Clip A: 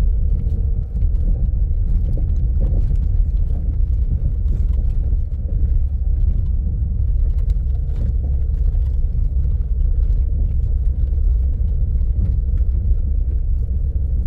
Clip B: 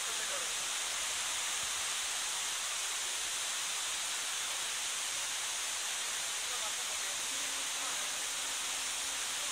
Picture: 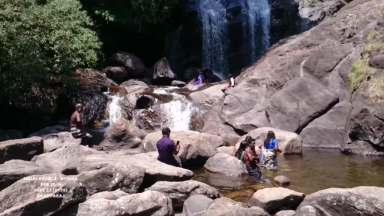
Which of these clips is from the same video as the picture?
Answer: B